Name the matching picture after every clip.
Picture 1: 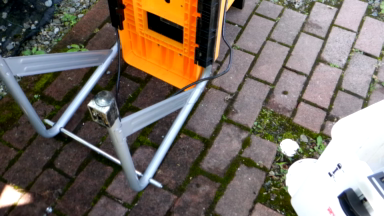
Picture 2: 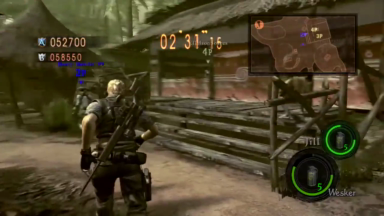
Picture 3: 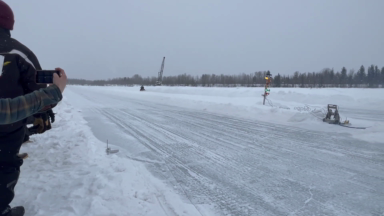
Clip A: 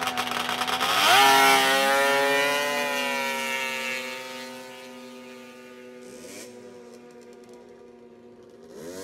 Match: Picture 3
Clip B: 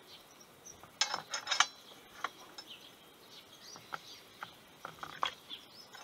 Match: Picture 1